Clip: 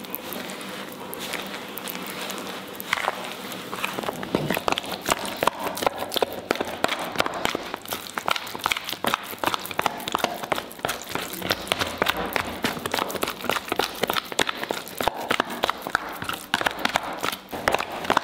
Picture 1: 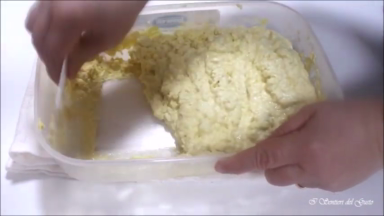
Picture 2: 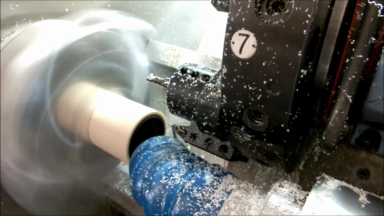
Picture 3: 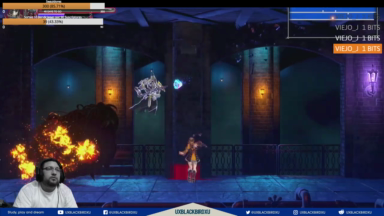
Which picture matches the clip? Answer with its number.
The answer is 1